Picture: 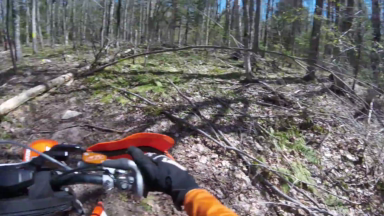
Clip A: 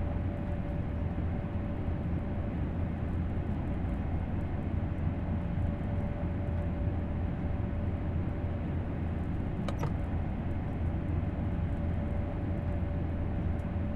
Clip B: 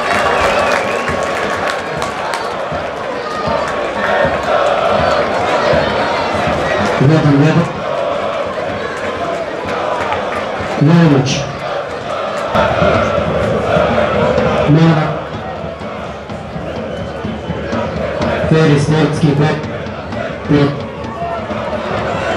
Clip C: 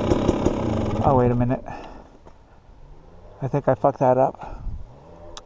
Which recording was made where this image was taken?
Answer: C